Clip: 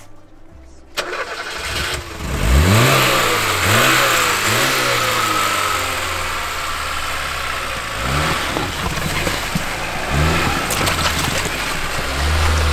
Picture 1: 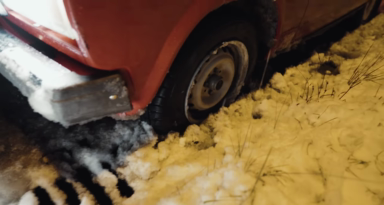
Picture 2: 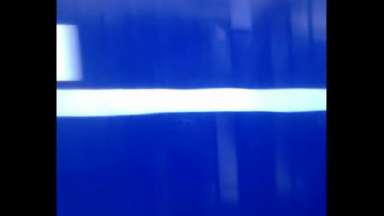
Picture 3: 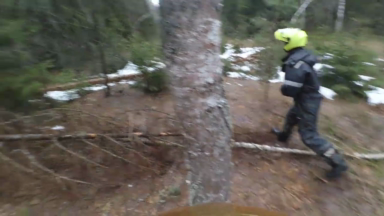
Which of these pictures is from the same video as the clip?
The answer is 1